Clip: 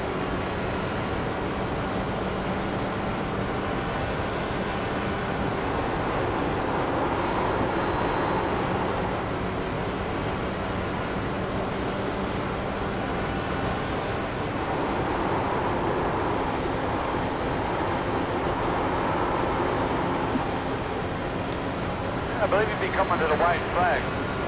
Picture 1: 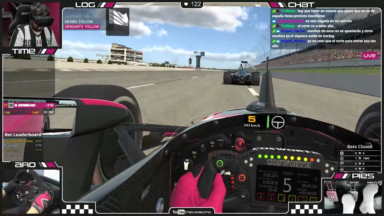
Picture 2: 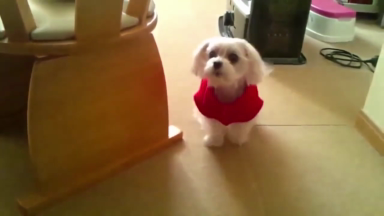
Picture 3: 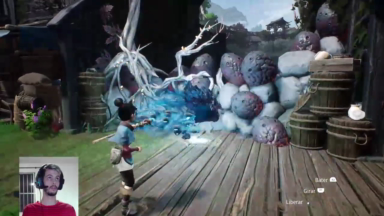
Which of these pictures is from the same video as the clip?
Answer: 1